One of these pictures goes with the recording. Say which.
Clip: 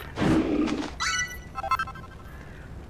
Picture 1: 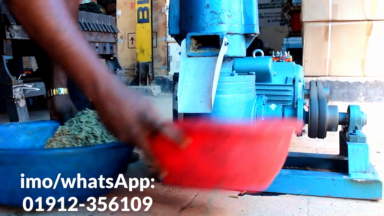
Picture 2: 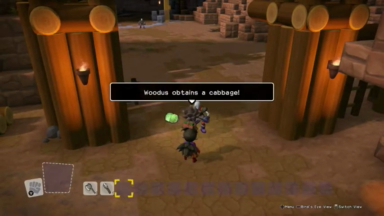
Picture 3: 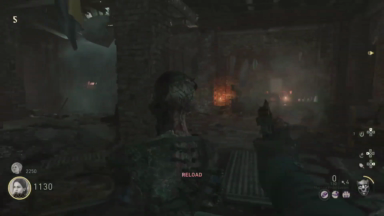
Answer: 2